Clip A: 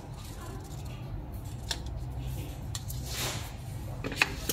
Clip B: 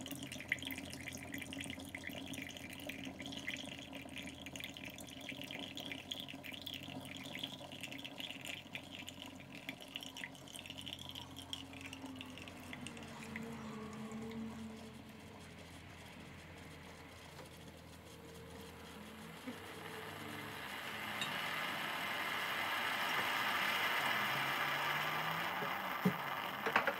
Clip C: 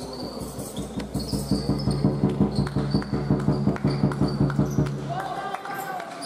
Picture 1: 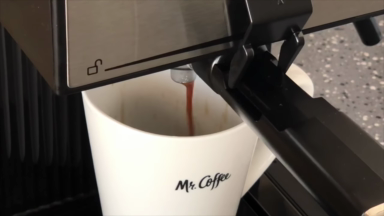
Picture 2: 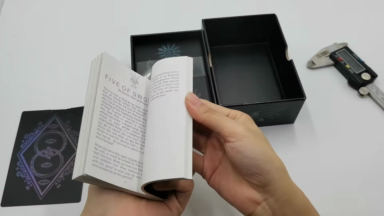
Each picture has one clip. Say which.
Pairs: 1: B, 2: A